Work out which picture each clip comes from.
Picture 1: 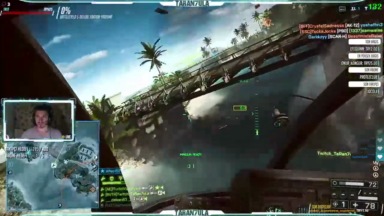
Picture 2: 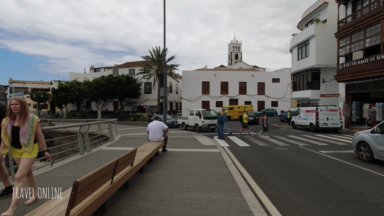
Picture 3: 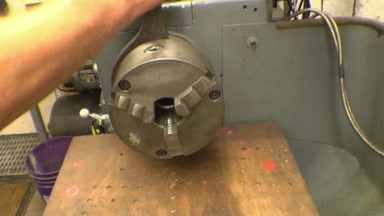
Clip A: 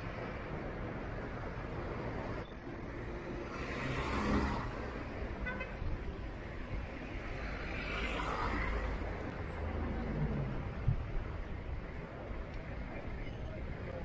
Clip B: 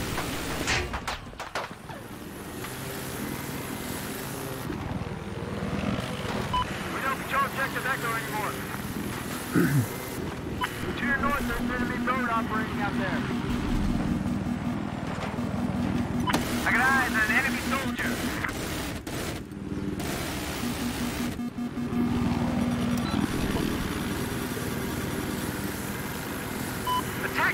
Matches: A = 2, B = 1